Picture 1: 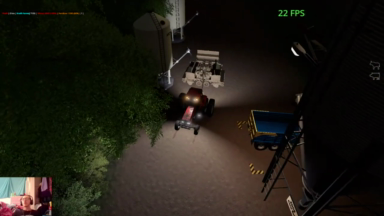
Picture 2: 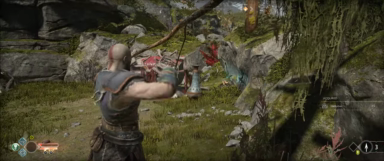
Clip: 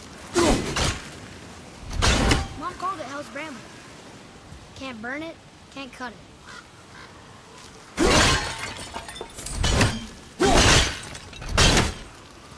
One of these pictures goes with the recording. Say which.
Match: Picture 2